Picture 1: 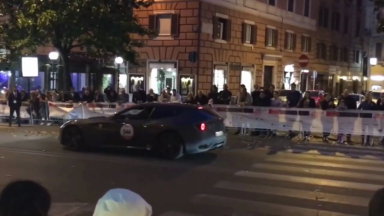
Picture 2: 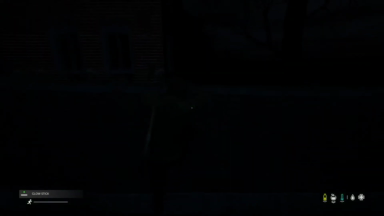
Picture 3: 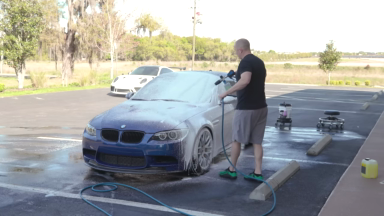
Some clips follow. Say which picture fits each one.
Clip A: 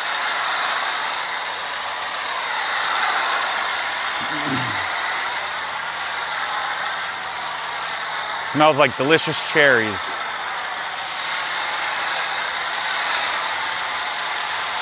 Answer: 3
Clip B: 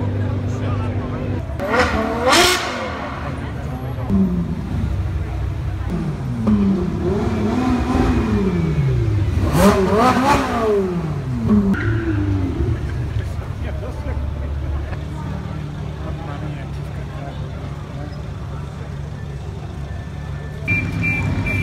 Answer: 1